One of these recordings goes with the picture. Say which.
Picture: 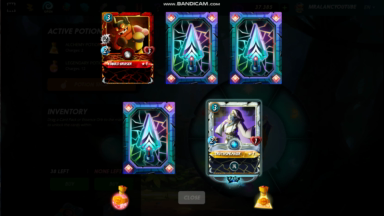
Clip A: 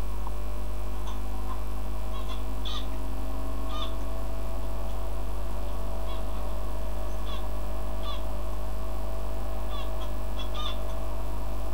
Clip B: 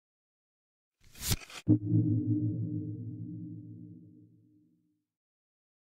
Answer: B